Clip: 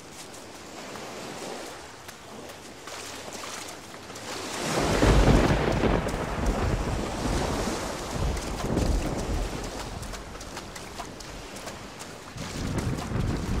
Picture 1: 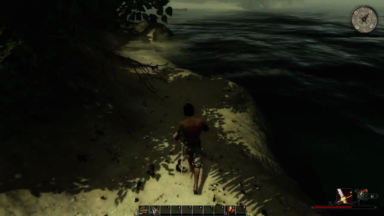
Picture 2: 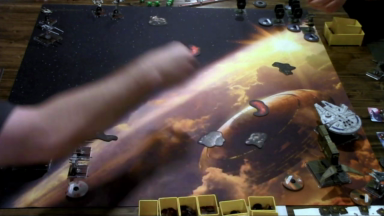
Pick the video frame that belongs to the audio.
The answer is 1